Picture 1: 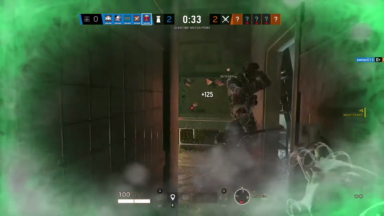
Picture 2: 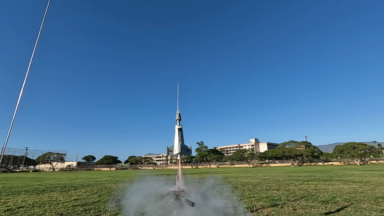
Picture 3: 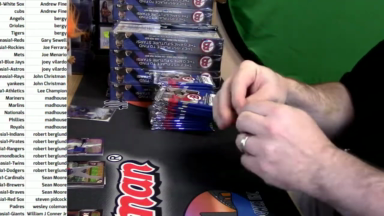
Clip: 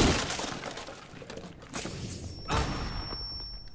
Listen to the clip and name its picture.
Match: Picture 1